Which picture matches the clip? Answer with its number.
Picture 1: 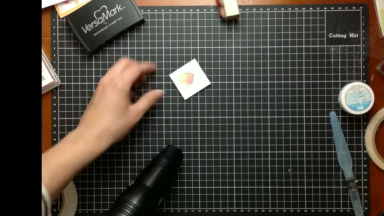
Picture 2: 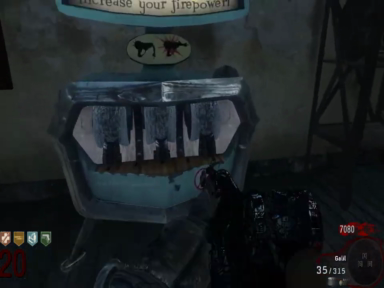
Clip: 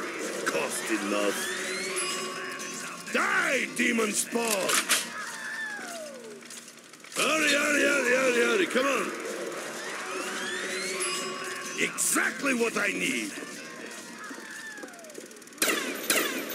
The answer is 2